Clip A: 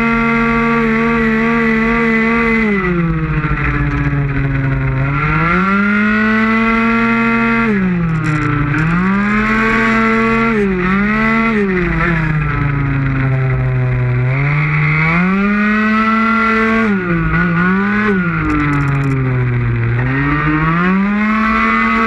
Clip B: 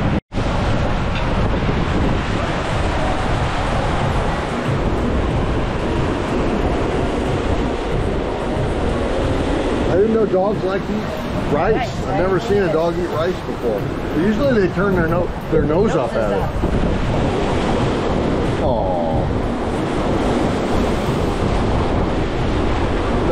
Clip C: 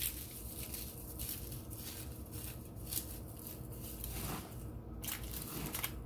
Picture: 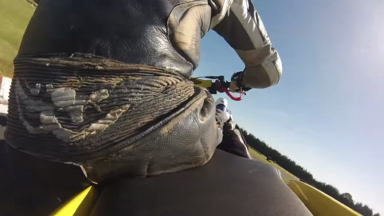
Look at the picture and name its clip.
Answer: A